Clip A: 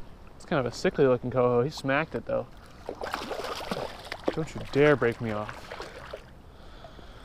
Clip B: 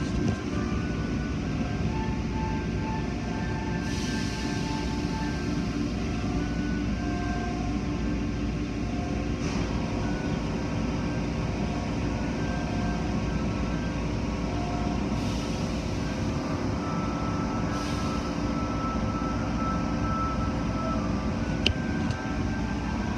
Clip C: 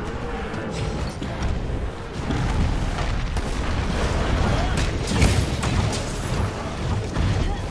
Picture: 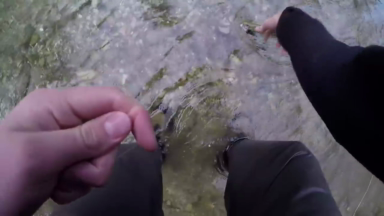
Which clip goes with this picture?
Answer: A